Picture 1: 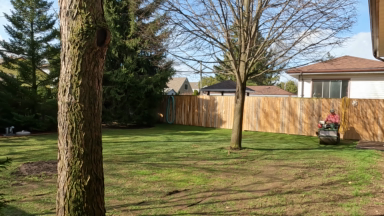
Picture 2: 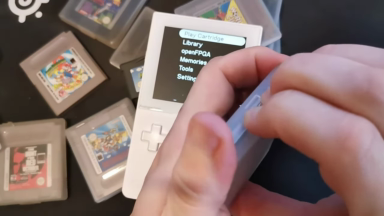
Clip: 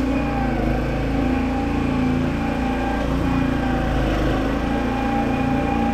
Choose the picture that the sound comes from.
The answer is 1